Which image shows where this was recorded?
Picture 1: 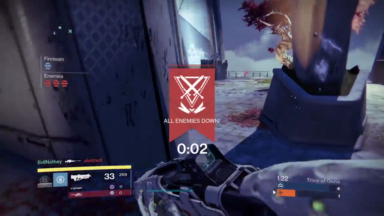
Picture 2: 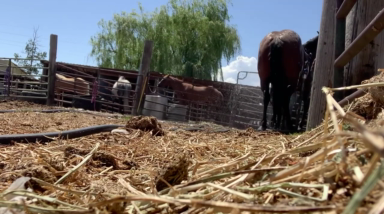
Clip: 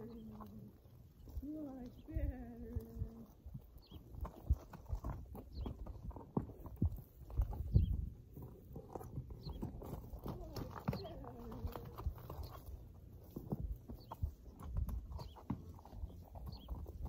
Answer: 2